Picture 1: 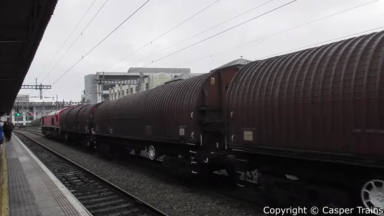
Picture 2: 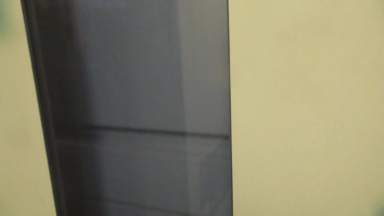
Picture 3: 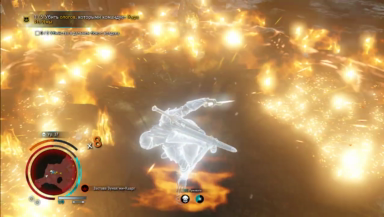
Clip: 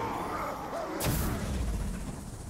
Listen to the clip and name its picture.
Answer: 3